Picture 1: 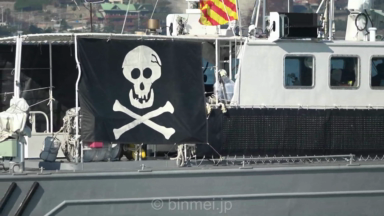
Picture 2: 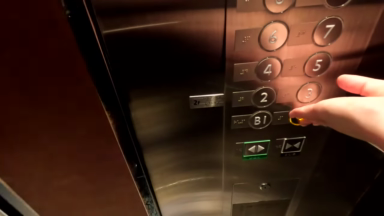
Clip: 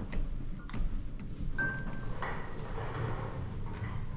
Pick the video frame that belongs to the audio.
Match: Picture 2